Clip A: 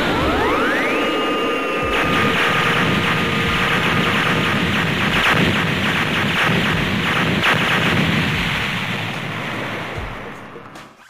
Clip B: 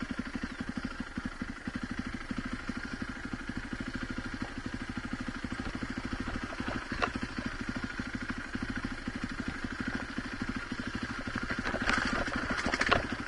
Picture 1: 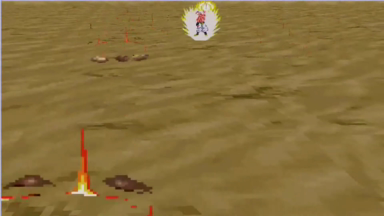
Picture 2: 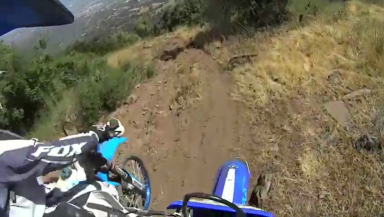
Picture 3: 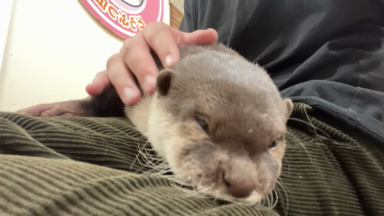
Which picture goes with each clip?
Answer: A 1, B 2